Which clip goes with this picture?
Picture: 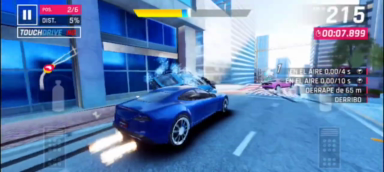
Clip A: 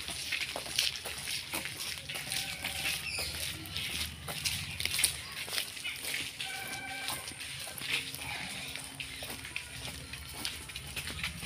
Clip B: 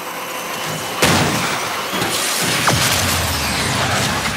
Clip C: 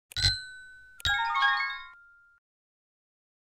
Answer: B